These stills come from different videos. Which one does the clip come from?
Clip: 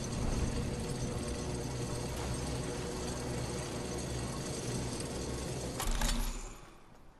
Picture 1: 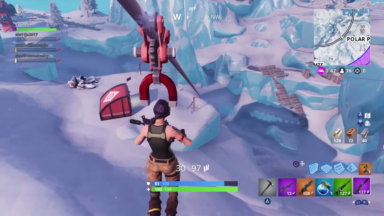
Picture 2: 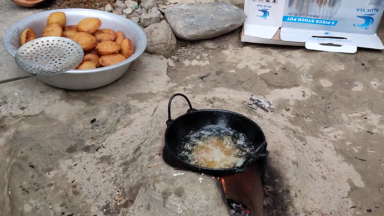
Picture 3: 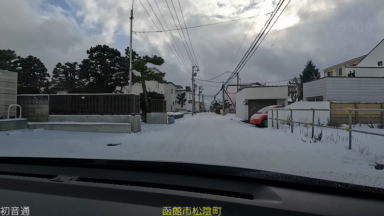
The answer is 1